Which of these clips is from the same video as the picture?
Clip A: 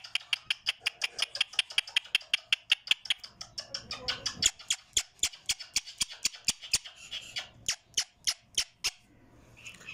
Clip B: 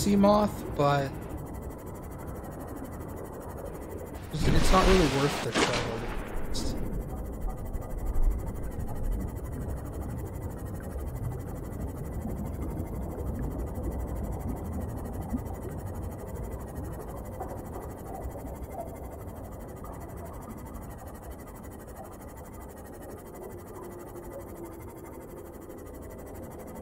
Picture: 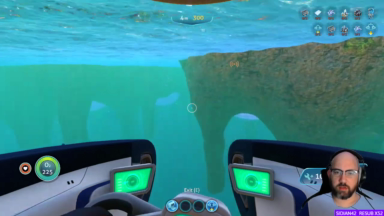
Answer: B